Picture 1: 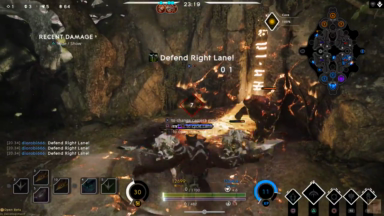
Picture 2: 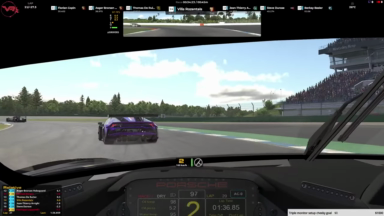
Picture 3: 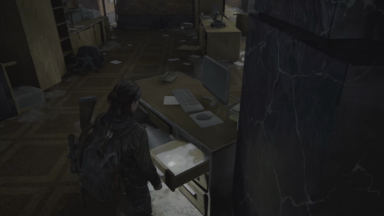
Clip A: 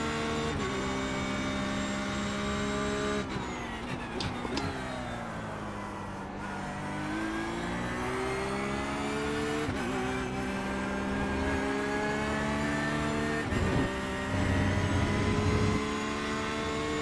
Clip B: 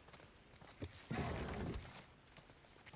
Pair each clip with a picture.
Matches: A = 2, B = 3